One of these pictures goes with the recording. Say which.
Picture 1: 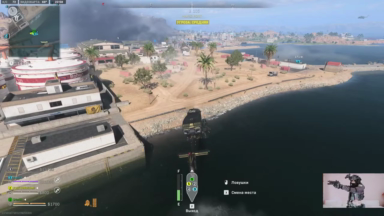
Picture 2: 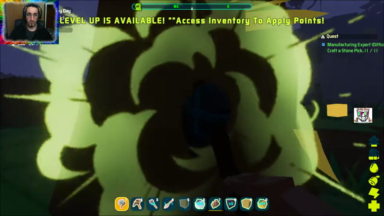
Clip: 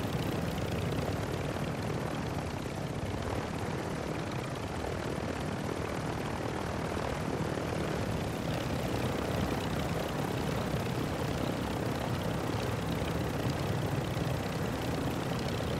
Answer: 1